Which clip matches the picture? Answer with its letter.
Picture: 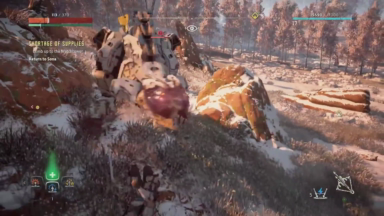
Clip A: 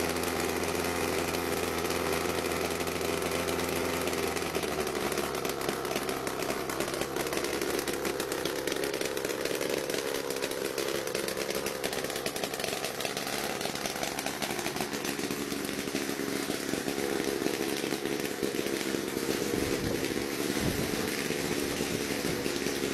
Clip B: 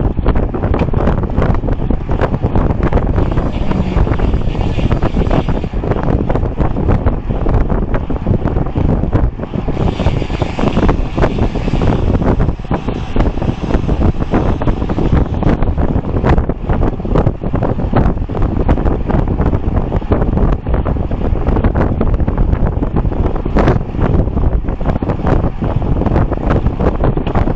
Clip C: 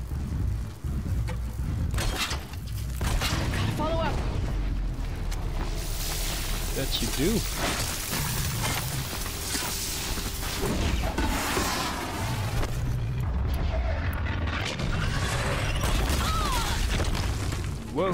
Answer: C